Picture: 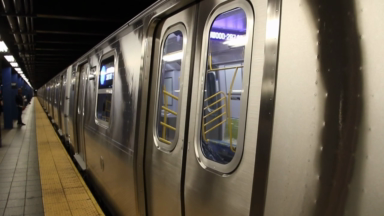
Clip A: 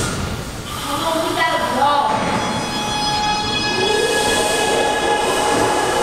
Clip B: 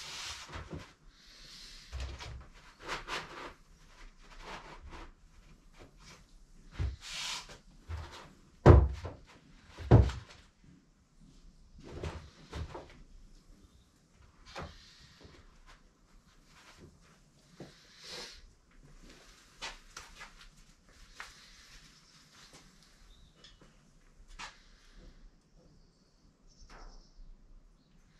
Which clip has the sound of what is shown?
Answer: A